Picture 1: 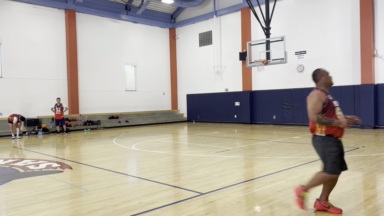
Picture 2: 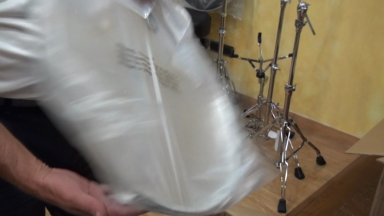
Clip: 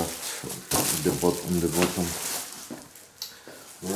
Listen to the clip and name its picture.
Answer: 2